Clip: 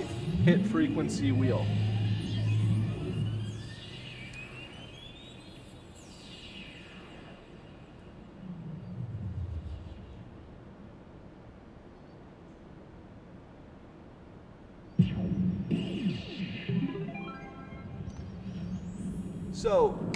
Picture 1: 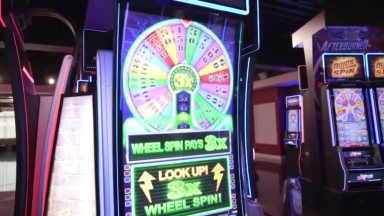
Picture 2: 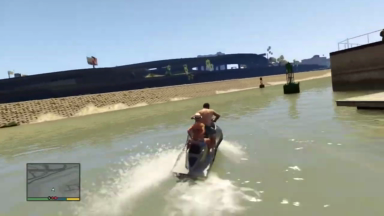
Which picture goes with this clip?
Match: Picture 1